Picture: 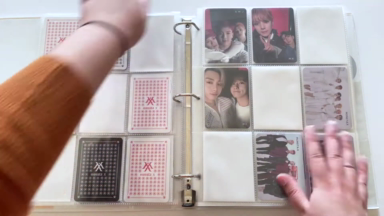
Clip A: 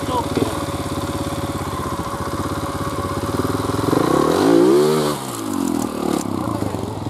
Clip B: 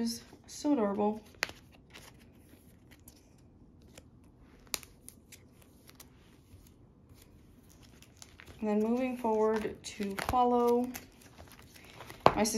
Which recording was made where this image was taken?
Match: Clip B